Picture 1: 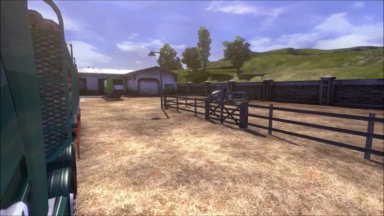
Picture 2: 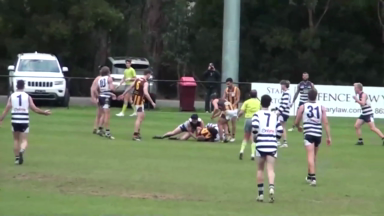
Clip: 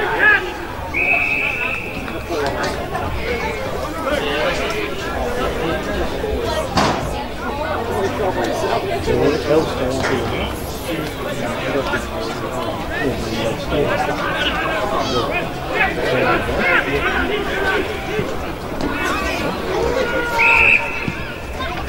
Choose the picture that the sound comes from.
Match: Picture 2